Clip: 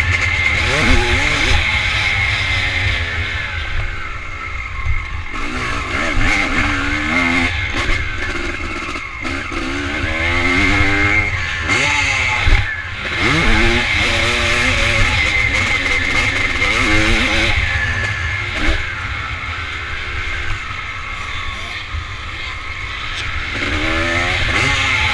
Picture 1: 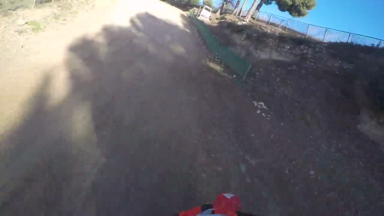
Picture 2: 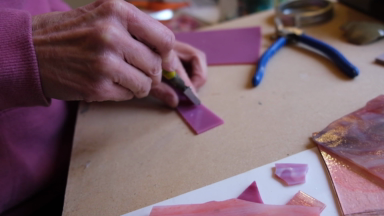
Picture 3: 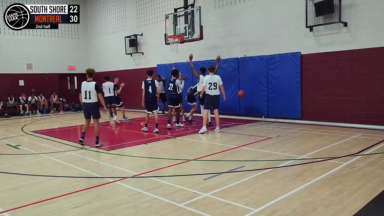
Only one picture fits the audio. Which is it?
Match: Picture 1